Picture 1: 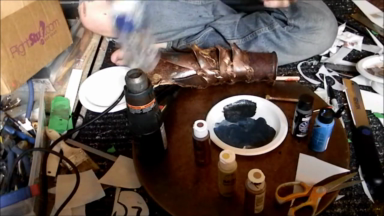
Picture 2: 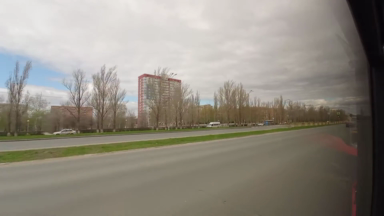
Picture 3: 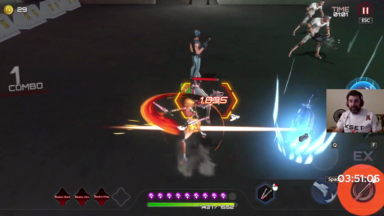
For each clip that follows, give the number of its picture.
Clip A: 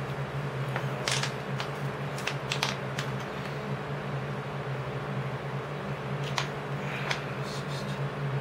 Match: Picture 1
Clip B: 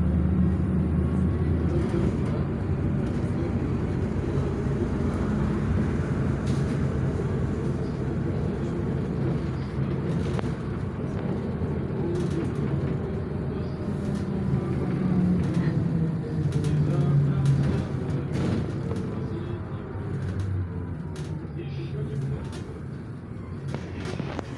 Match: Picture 2